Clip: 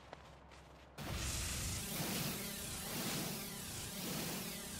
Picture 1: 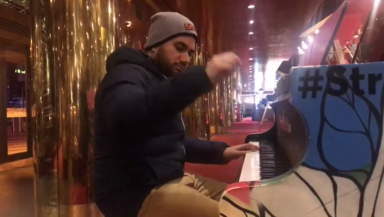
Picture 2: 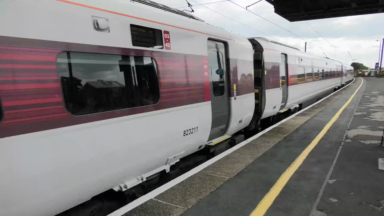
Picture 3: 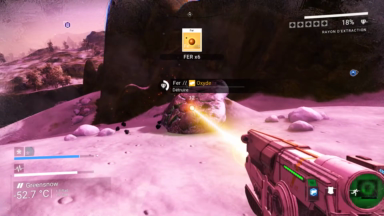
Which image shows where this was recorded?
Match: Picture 3